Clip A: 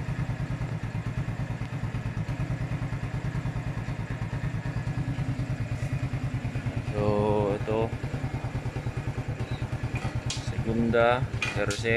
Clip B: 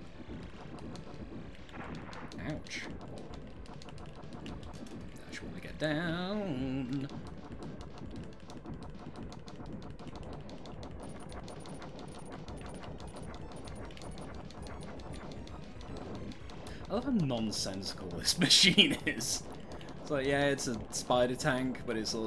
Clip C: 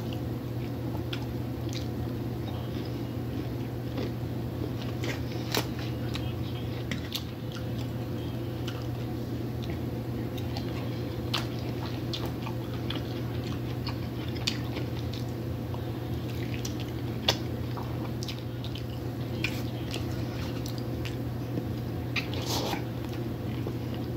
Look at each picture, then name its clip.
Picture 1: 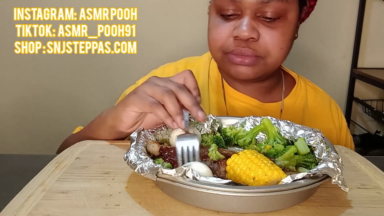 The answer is C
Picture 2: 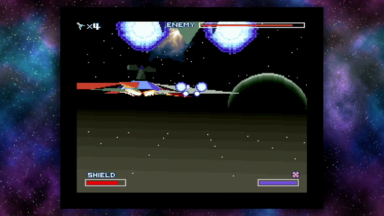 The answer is B